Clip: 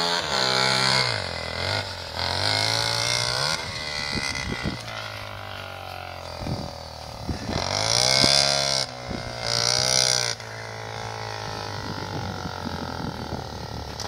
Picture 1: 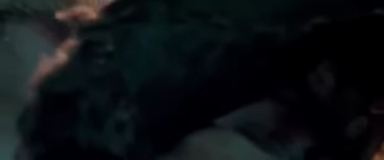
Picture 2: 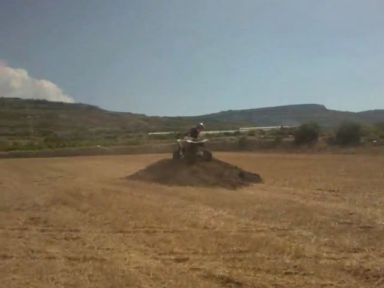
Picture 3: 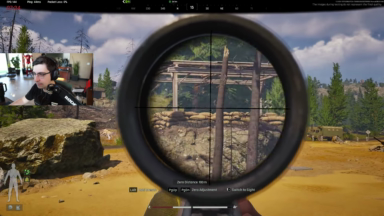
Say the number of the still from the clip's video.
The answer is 2